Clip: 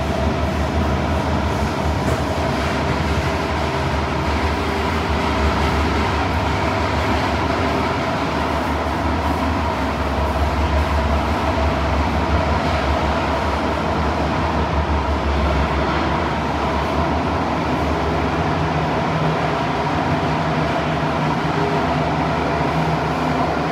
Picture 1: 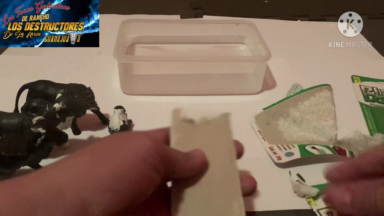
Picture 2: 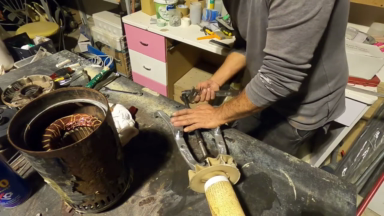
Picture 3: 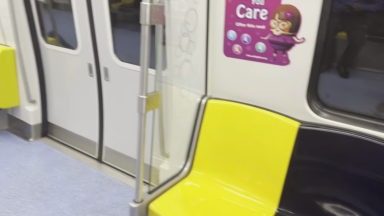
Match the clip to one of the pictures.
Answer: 3